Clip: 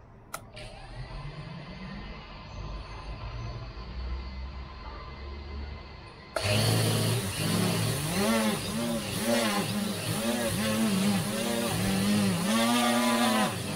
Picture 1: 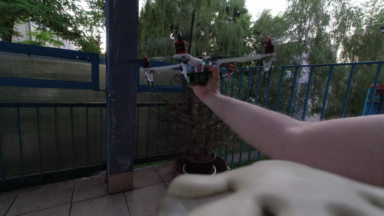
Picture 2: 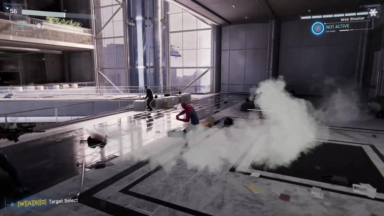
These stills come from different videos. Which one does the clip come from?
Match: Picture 1